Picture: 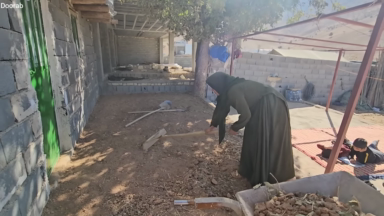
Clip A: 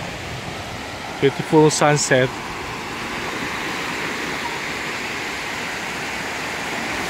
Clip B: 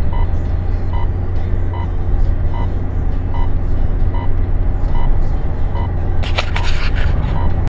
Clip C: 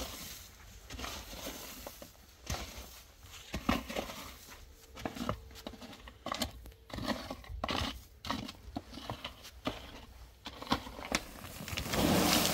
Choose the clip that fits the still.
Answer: C